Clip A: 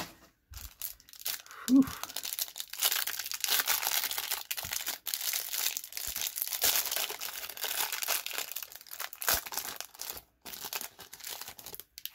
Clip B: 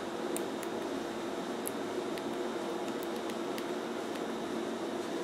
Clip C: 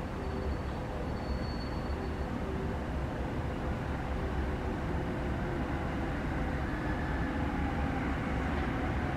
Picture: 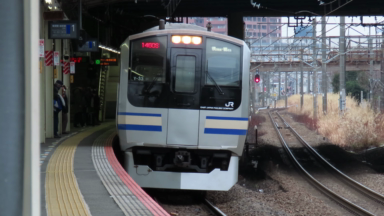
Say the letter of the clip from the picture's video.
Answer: C